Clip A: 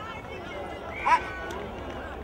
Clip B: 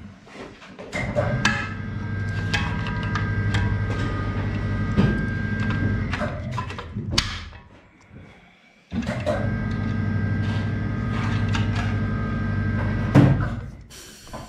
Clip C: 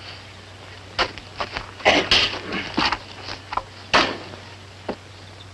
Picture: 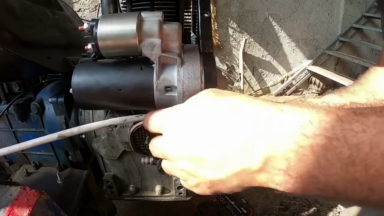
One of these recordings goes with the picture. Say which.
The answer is B